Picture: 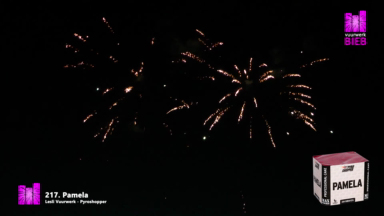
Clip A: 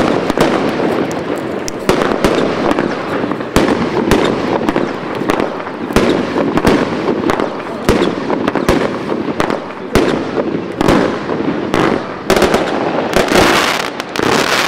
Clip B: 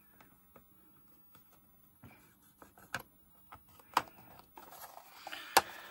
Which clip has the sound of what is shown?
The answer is A